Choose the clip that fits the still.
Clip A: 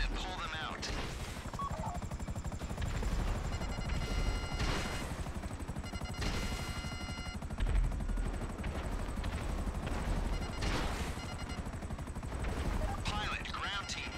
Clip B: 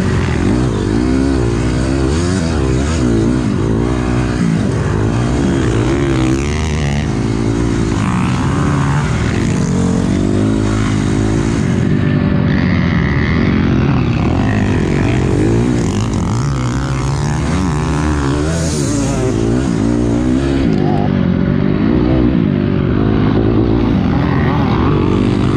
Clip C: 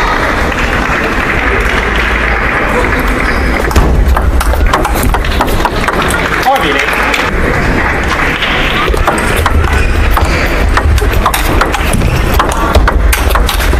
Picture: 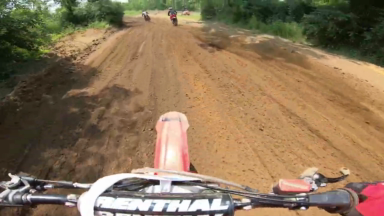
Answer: B